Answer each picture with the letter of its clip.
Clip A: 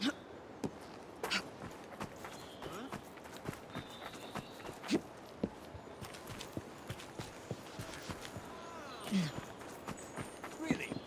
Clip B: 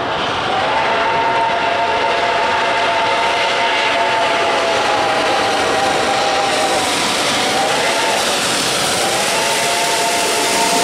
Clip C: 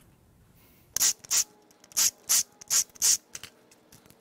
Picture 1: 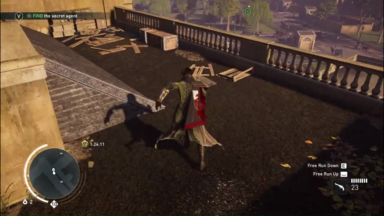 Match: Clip A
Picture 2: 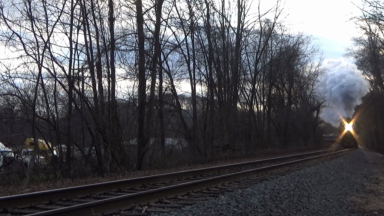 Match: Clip B